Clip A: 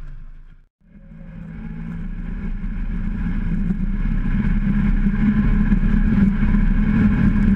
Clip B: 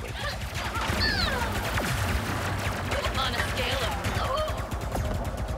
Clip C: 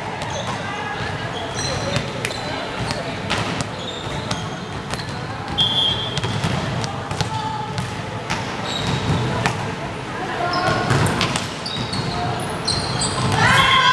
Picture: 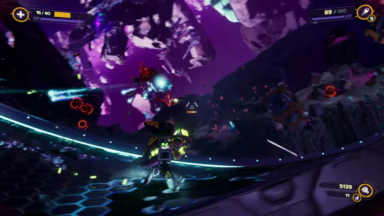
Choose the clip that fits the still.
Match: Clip B